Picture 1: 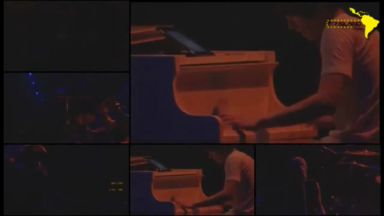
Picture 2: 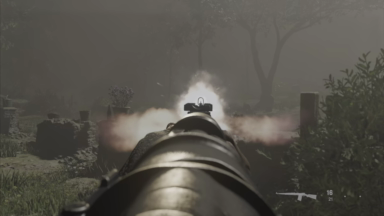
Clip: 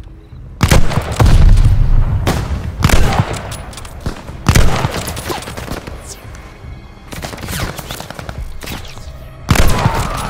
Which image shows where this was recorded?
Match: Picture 2